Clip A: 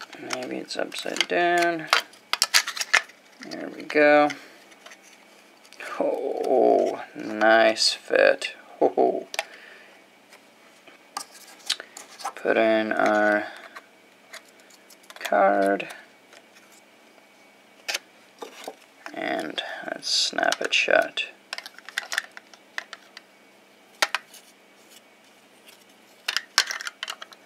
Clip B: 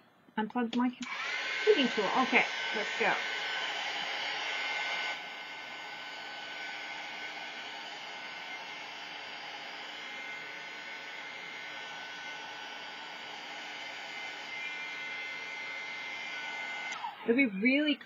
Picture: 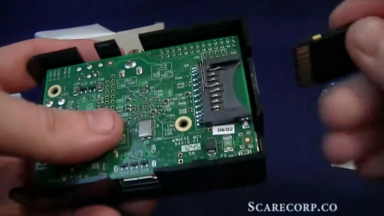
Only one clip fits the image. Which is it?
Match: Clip A